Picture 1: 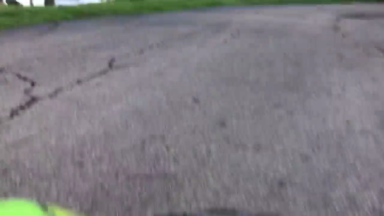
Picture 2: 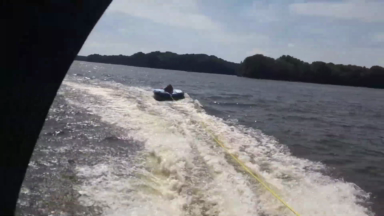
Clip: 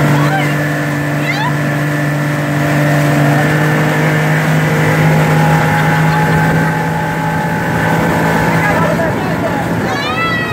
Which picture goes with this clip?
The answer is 2